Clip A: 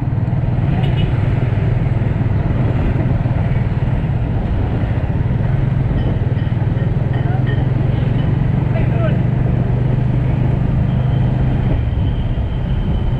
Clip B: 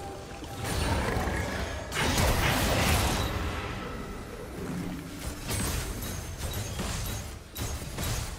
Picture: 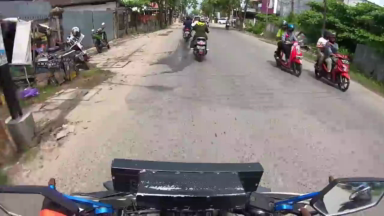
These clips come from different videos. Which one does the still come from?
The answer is A